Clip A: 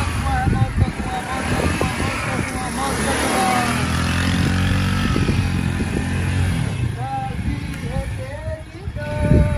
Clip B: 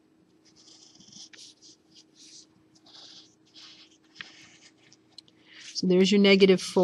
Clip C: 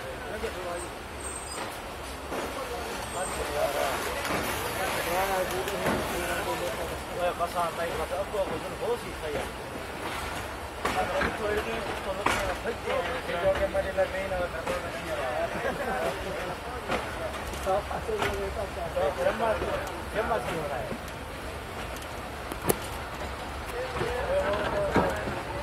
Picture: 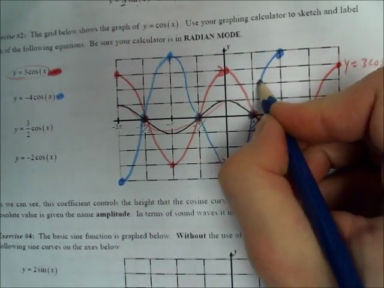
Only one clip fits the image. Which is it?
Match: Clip B